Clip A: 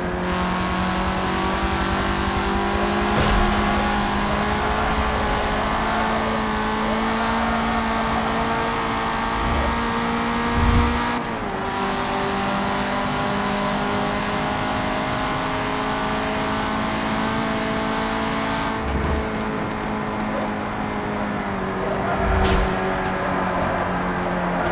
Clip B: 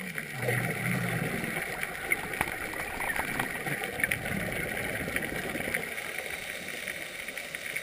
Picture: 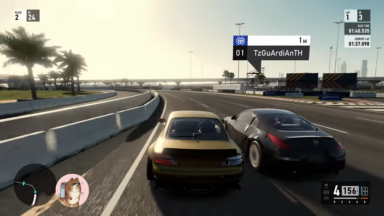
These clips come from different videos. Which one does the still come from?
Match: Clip A